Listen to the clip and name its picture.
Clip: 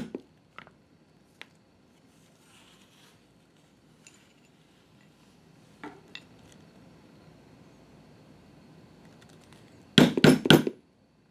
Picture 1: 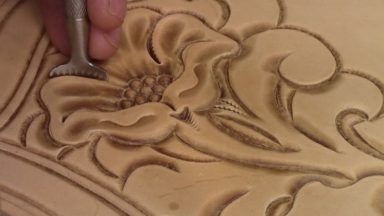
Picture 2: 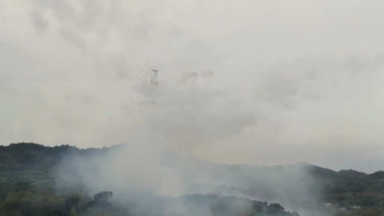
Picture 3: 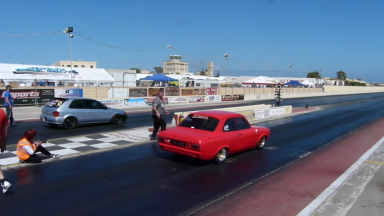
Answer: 1